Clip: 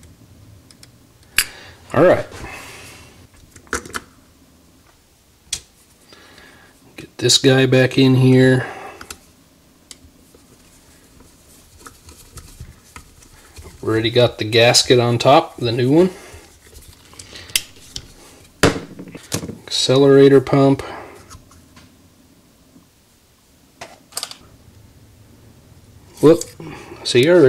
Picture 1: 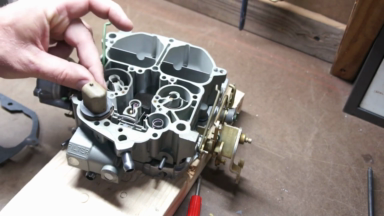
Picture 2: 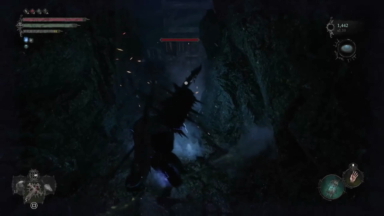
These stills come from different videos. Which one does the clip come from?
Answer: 1